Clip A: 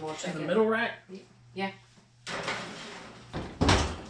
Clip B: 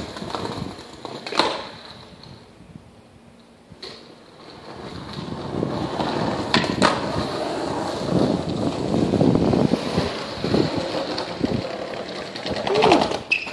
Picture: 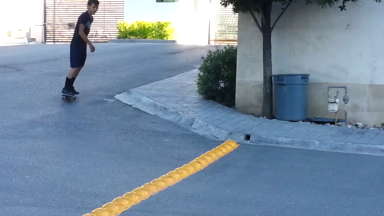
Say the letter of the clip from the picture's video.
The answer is B